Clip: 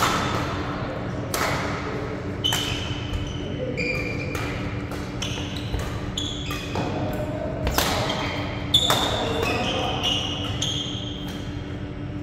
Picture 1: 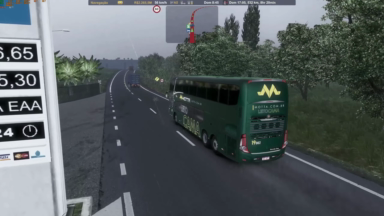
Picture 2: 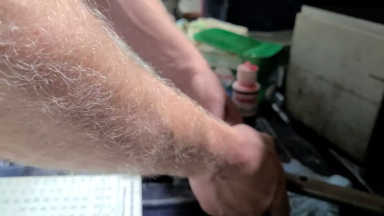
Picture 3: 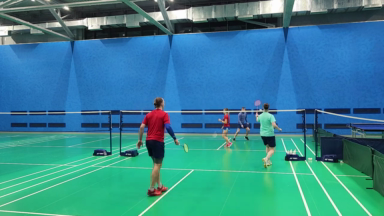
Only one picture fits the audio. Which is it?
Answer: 3